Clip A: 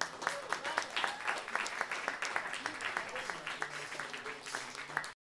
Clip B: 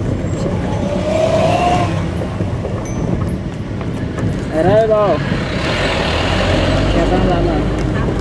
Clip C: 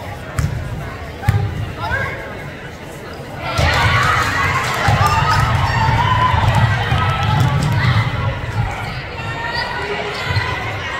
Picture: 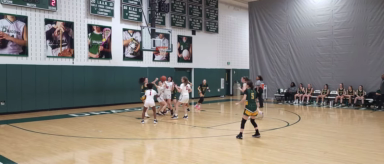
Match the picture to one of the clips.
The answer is C